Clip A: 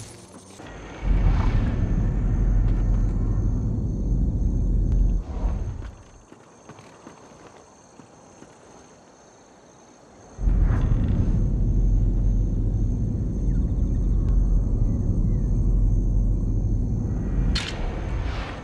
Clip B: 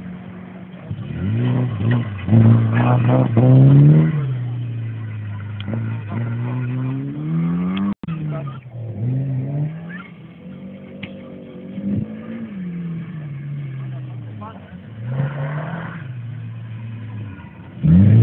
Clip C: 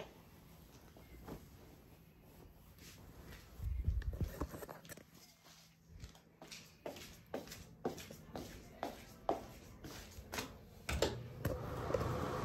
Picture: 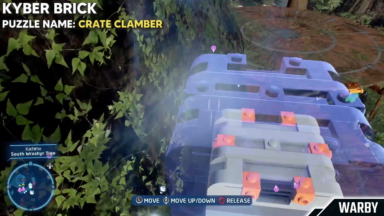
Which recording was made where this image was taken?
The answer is A